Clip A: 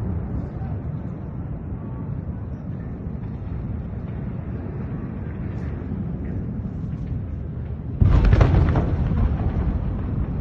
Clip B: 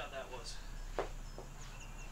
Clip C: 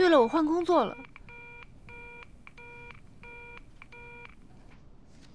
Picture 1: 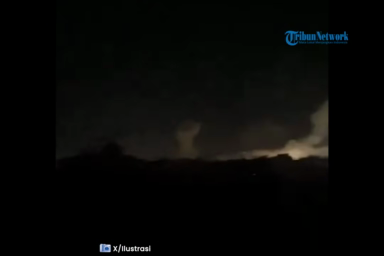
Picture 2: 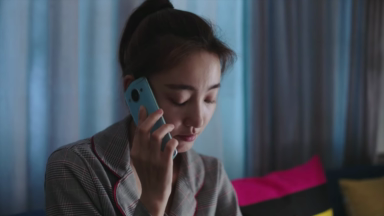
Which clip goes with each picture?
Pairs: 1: A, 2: C